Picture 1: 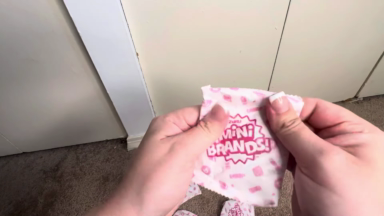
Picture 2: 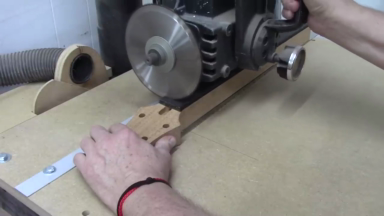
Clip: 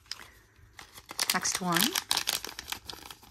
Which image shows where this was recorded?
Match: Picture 1